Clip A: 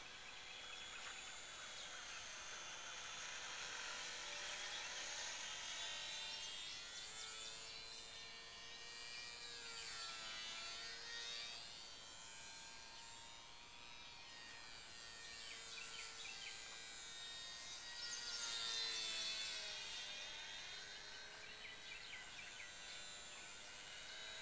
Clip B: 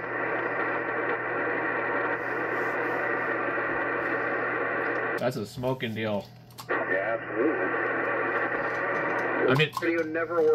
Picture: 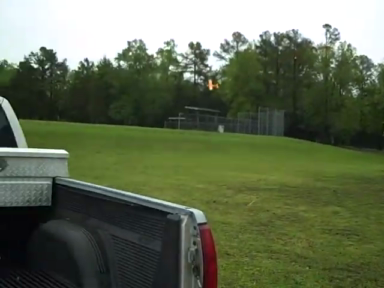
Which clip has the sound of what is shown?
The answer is A